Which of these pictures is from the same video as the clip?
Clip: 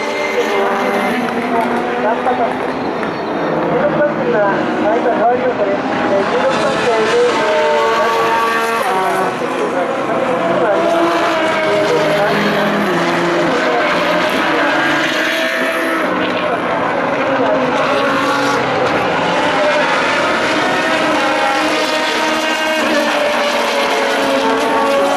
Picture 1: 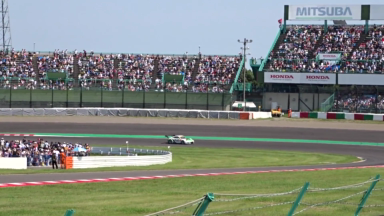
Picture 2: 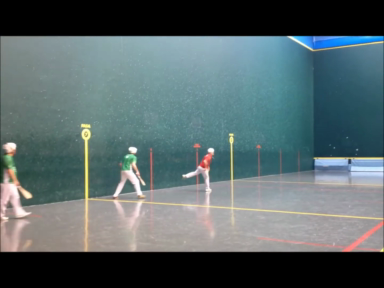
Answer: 1